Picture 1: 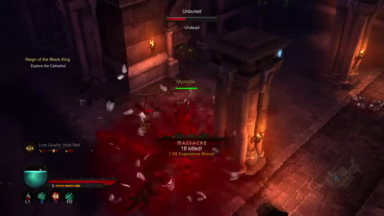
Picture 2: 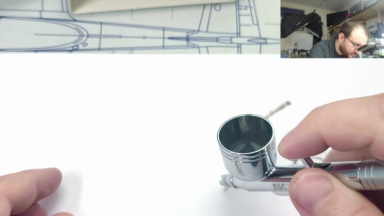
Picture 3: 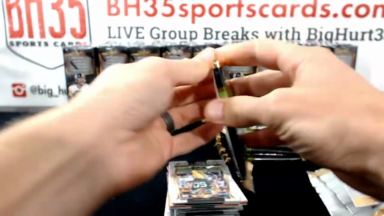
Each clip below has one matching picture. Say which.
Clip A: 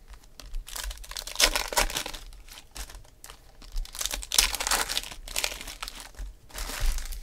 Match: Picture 3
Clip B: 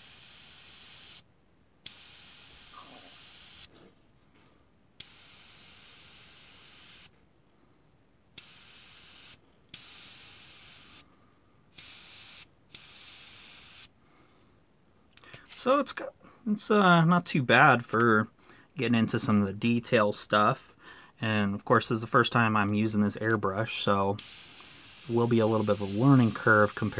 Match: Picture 2